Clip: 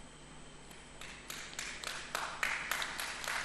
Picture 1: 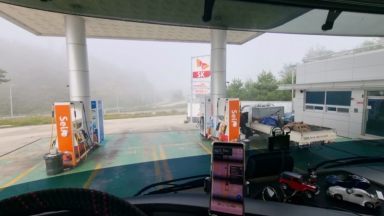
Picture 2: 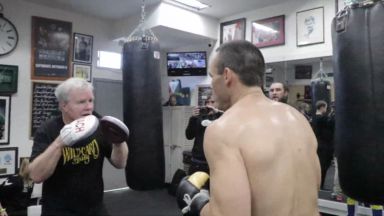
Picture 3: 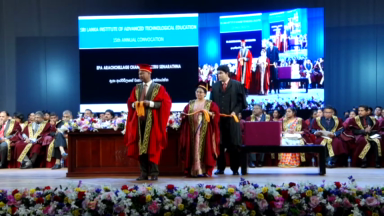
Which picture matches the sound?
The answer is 3